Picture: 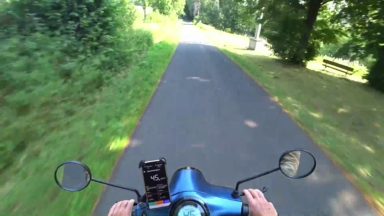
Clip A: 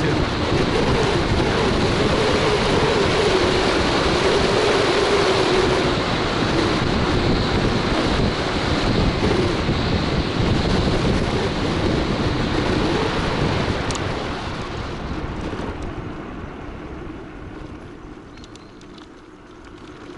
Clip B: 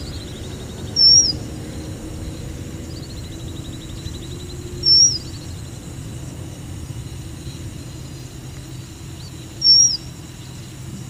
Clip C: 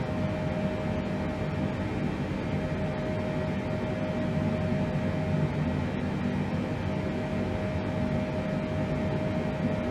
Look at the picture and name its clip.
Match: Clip A